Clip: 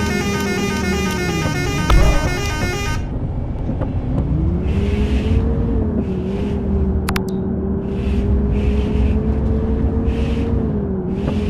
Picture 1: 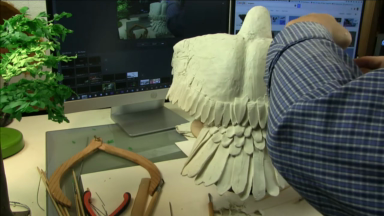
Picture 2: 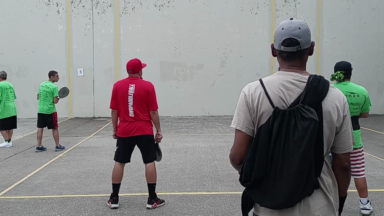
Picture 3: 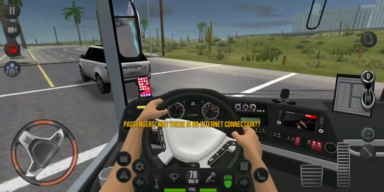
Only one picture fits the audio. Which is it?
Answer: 3